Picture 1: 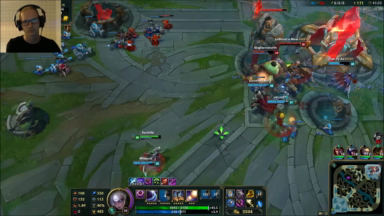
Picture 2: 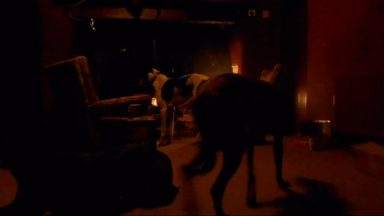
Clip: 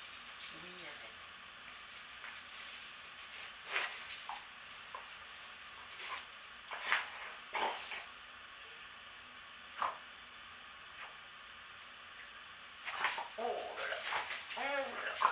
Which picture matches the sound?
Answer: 2